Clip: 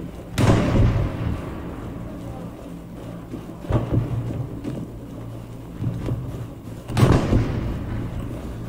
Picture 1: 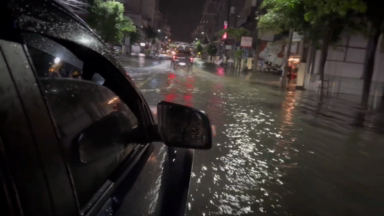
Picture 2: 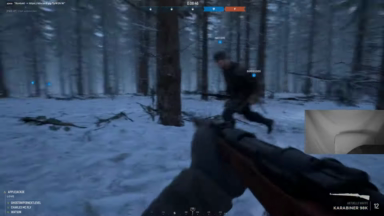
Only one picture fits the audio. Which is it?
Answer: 2